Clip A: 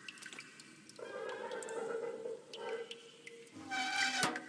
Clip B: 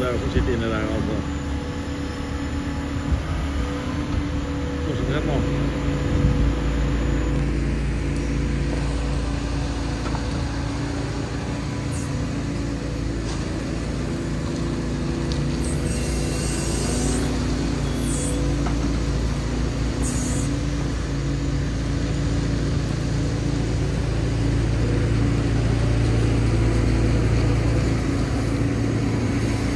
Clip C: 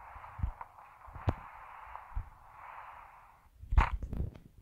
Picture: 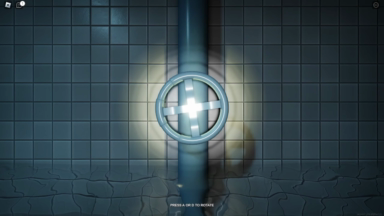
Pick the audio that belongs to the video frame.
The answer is A